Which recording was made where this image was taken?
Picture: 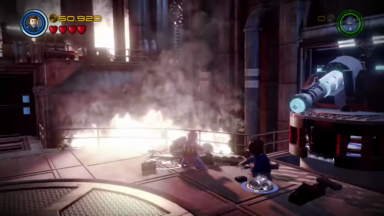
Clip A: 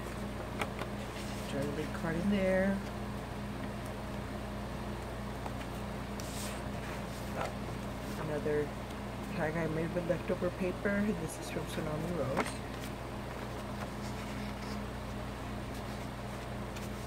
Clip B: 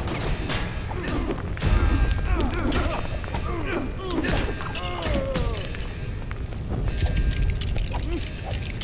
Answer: B